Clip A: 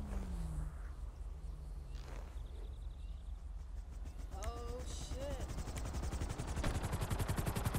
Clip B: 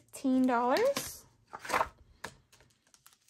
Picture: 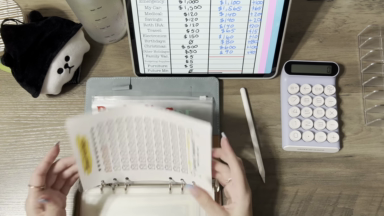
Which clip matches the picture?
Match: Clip B